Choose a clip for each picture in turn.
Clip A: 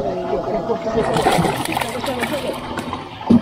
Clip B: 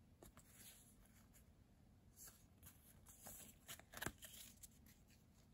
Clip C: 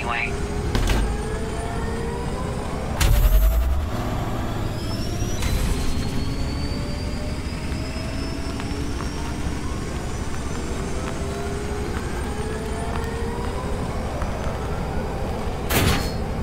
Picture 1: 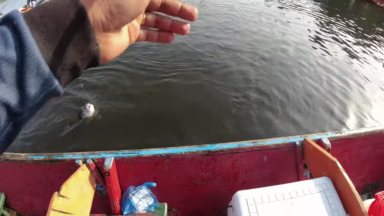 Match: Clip A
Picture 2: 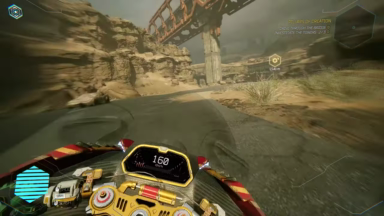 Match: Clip C